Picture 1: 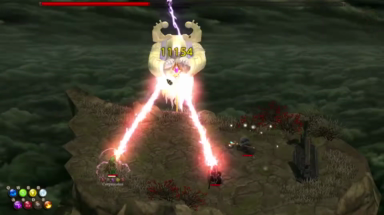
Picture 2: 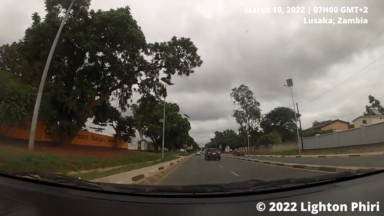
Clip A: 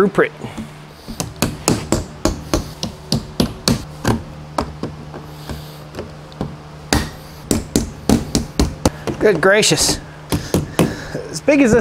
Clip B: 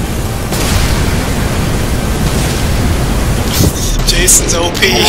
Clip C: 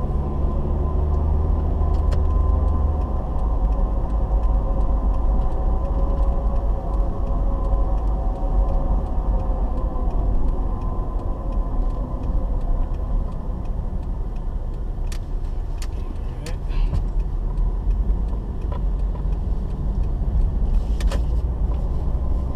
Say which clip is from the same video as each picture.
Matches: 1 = B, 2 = C